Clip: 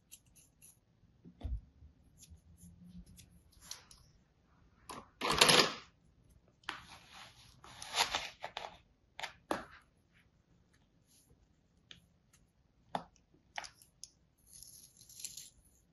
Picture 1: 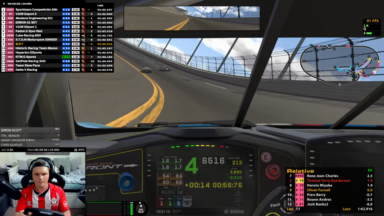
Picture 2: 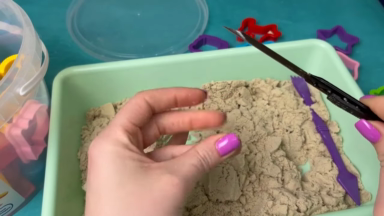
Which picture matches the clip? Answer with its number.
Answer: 2